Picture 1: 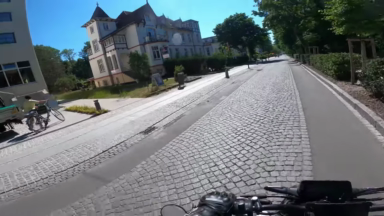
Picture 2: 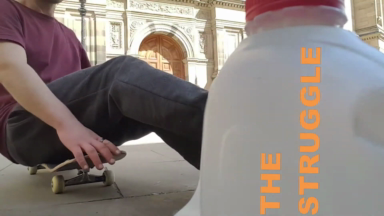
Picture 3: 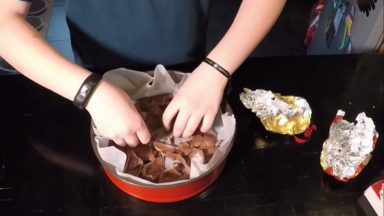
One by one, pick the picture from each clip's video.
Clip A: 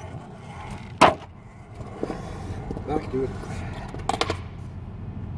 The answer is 2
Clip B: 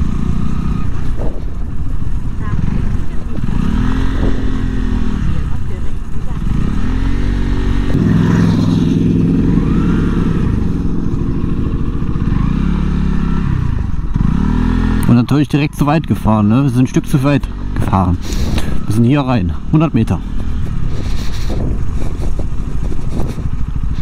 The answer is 1